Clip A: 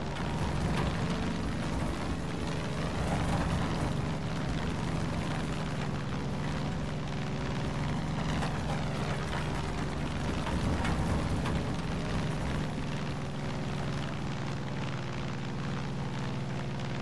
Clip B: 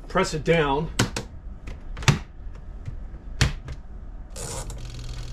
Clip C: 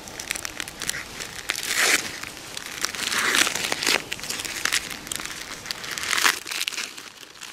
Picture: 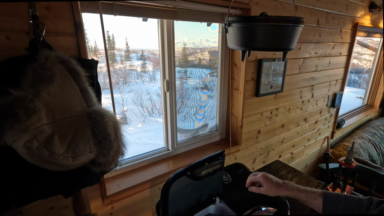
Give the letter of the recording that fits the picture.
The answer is B